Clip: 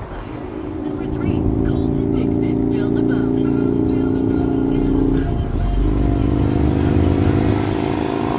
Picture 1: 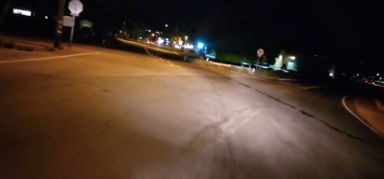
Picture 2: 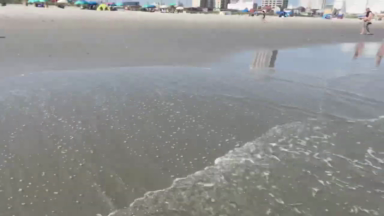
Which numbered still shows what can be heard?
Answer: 1